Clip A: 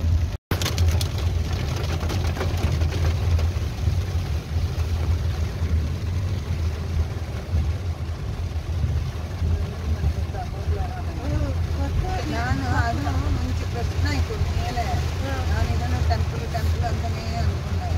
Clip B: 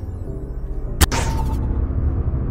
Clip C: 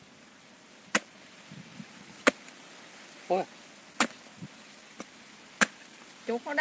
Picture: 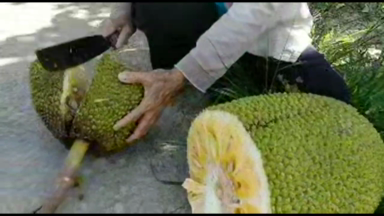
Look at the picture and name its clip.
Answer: C